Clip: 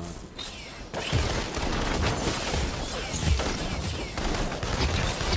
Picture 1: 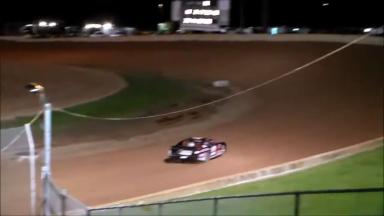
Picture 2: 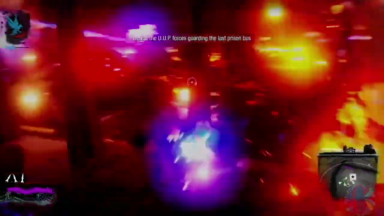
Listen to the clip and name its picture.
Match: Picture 2